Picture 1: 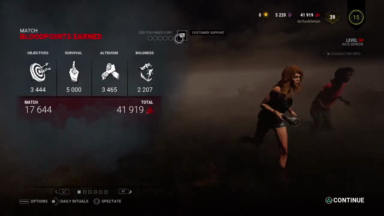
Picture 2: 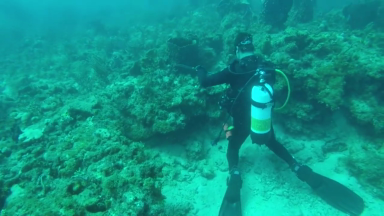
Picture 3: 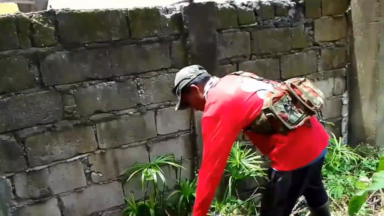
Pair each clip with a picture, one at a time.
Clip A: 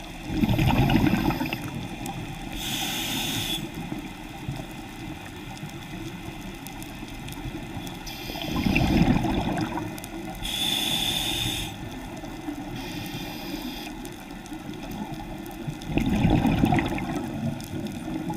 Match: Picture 2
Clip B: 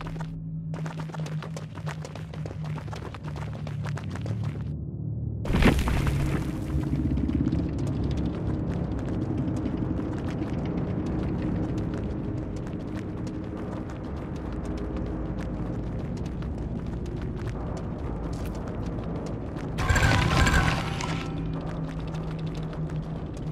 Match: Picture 1